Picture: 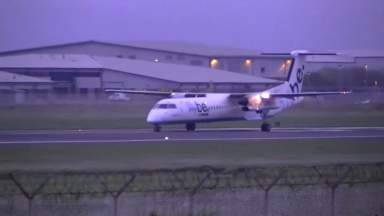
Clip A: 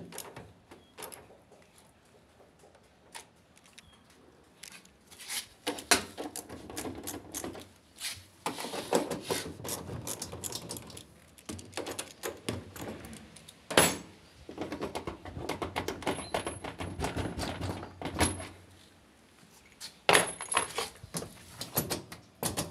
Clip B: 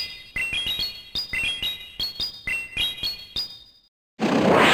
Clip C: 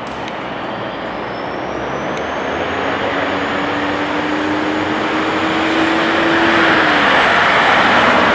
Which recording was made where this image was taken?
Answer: C